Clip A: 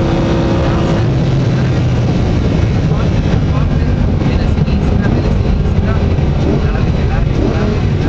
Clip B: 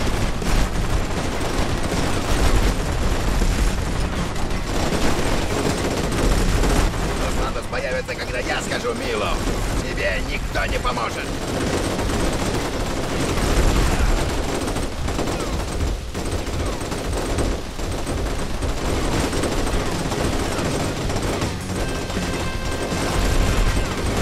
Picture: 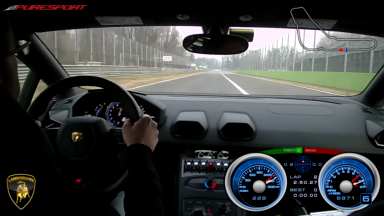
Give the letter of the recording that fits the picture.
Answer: A